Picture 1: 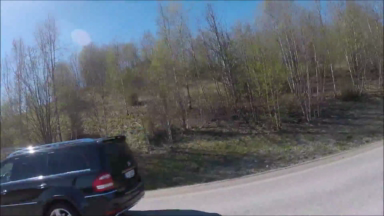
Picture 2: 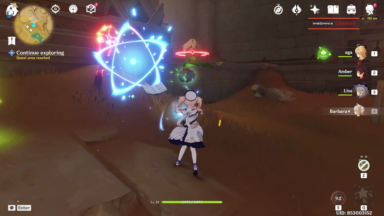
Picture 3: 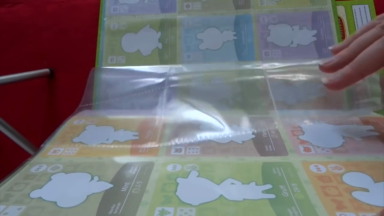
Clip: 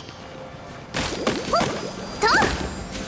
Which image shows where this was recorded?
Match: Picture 2